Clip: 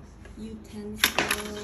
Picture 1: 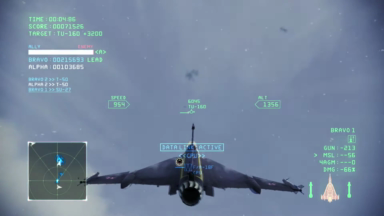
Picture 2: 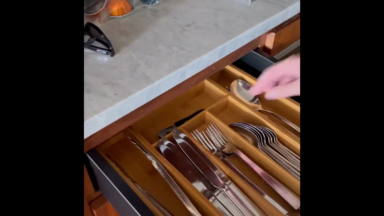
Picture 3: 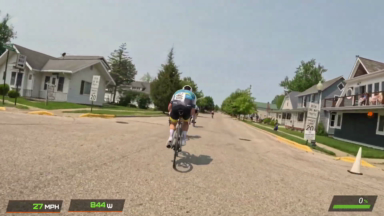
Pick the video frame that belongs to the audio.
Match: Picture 2